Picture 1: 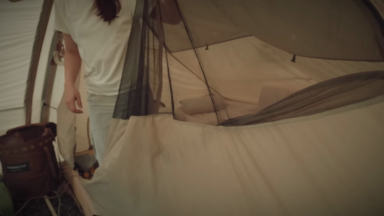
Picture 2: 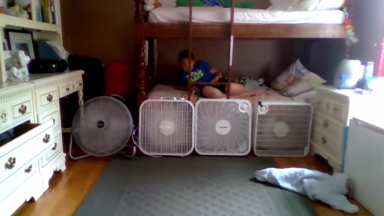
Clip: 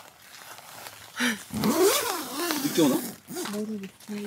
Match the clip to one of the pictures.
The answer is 1